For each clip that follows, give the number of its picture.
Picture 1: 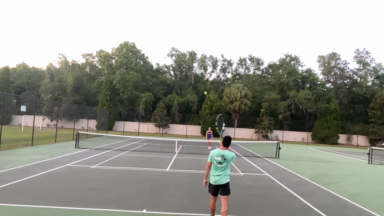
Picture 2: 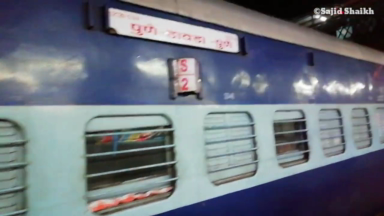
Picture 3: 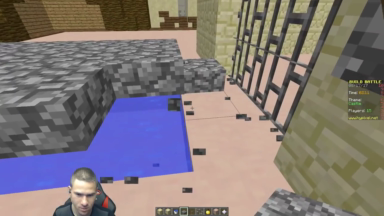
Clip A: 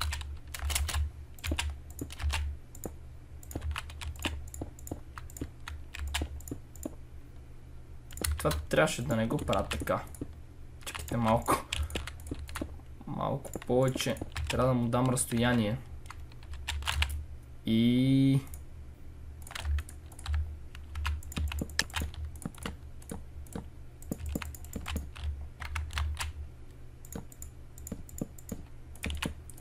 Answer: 3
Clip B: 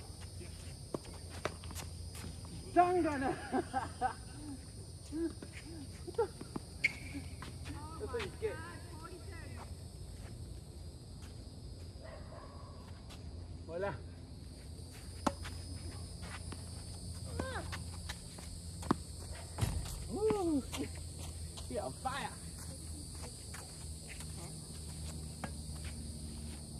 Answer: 1